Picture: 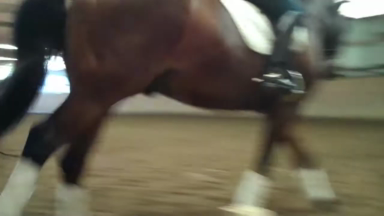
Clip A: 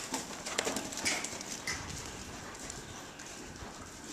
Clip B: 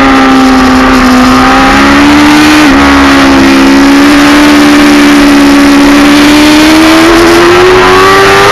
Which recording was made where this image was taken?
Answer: A